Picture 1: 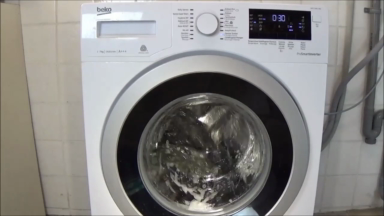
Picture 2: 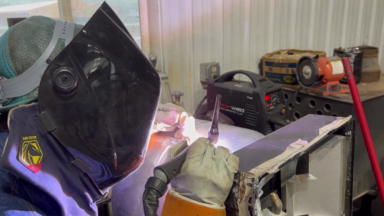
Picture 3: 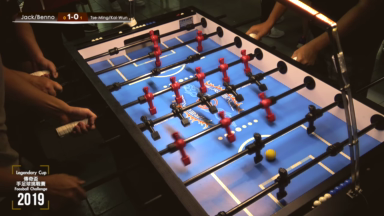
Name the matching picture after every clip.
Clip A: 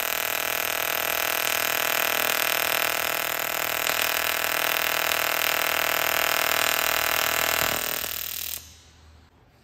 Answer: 2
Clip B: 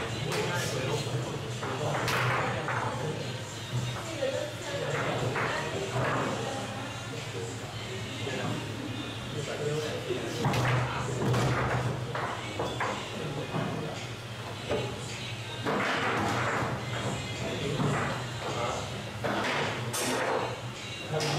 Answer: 3